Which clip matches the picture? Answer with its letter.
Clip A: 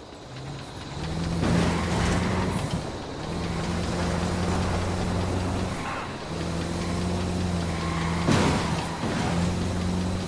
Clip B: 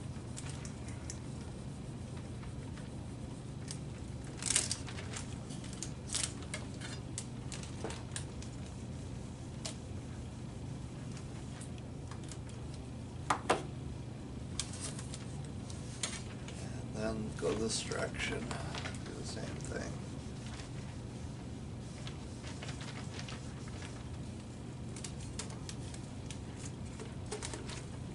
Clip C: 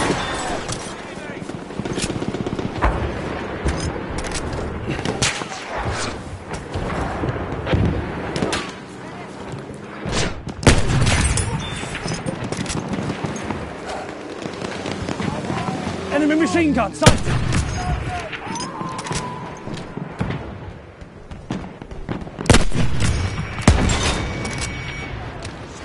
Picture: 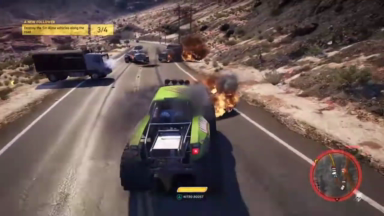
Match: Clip A